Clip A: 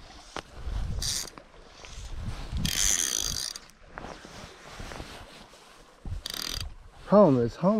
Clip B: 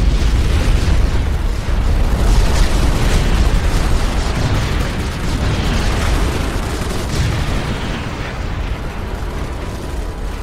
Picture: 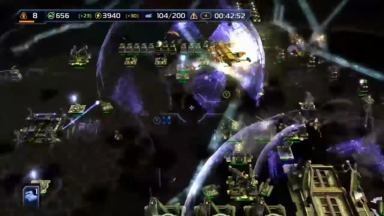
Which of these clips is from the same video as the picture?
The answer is B